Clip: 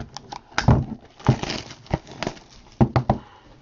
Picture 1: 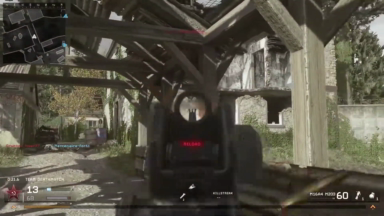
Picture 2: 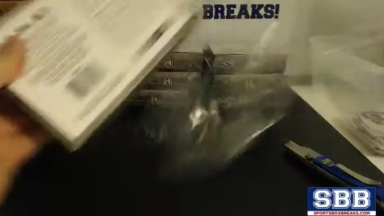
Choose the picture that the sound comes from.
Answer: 2